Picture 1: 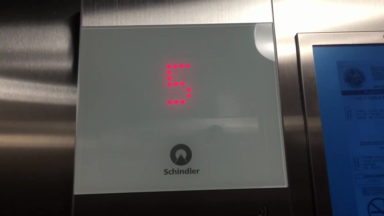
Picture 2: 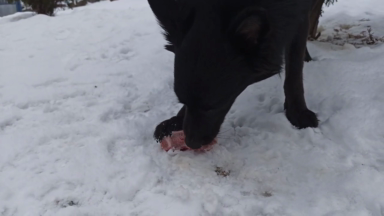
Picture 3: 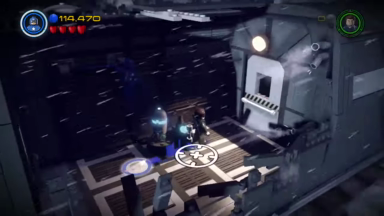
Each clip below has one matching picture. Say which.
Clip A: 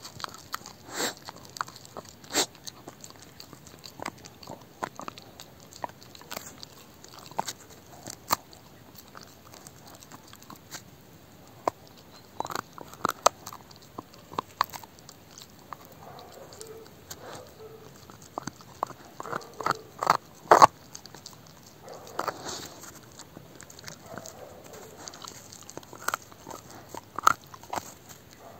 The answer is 2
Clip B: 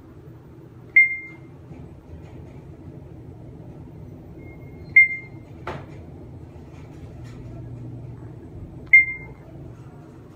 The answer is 1